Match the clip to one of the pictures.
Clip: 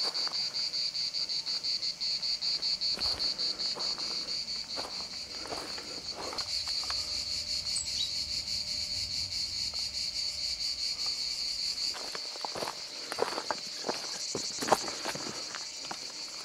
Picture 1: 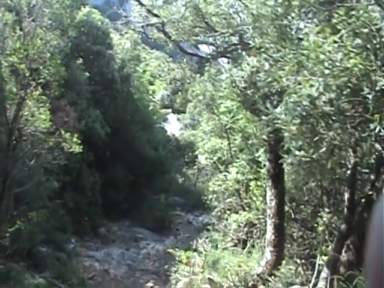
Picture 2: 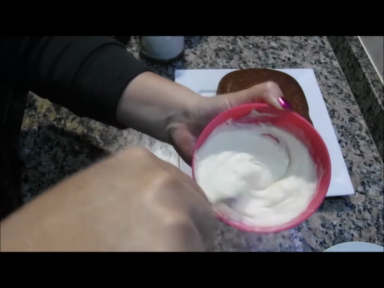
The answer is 1